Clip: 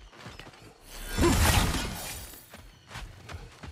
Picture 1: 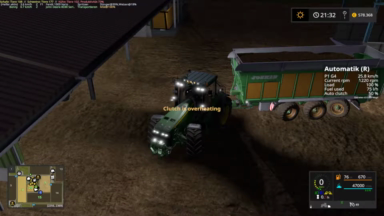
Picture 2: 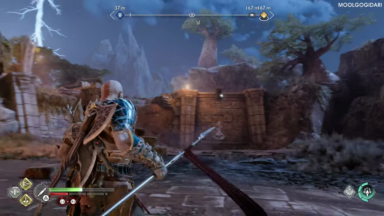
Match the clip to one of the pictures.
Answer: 2